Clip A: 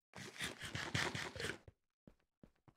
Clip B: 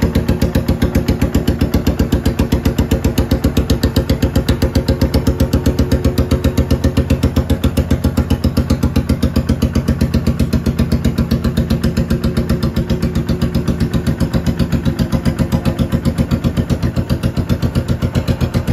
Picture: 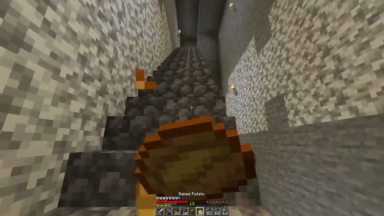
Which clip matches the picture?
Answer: A